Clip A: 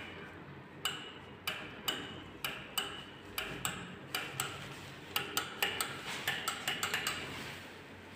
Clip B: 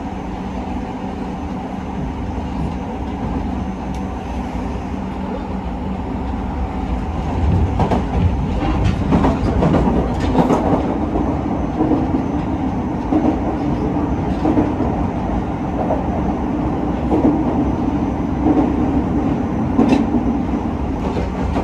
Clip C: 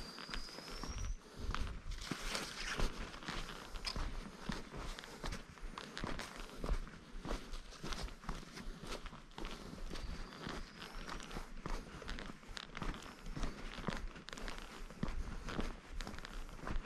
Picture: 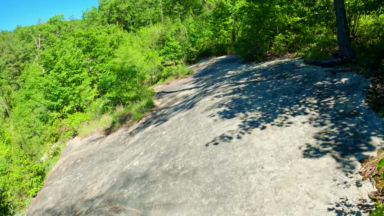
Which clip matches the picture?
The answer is C